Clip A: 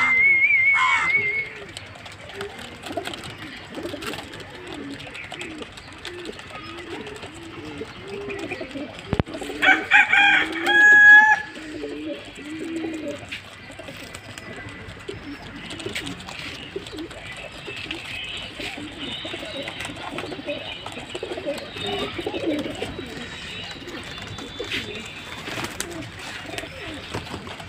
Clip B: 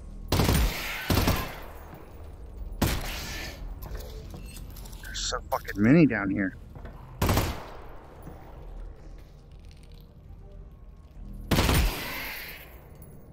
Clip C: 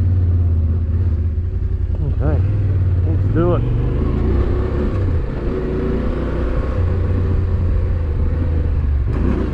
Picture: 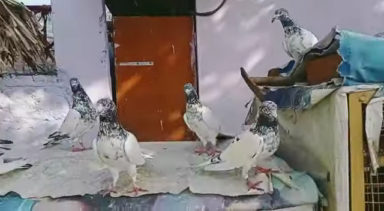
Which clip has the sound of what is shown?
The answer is A